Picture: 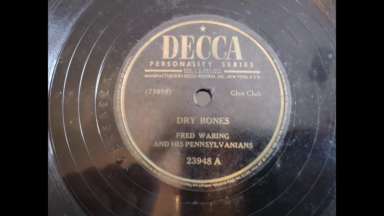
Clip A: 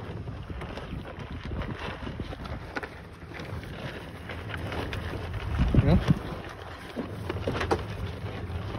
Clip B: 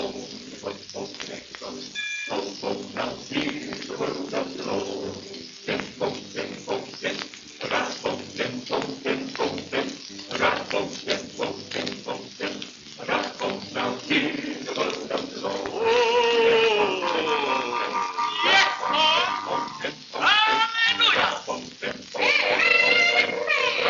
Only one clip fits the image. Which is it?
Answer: B